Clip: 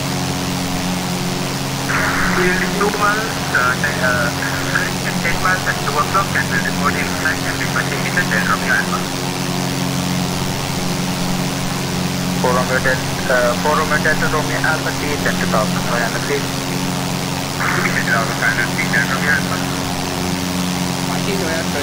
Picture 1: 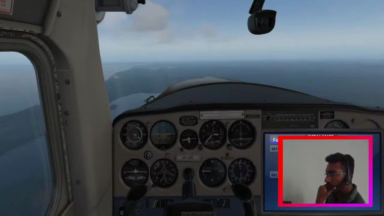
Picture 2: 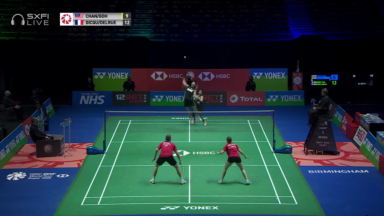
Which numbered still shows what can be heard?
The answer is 1